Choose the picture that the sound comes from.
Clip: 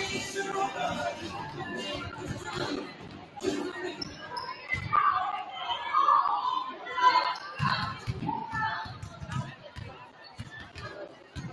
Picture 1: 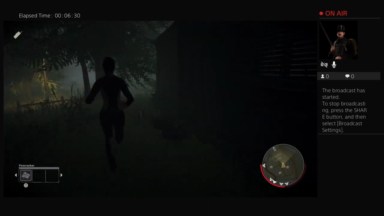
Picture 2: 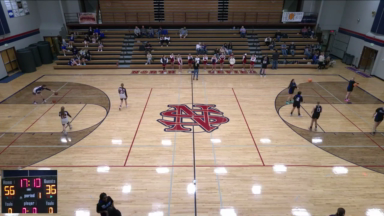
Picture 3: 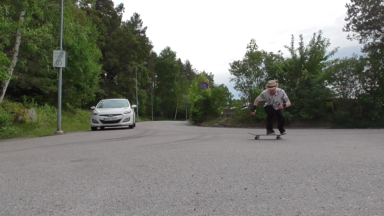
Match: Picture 2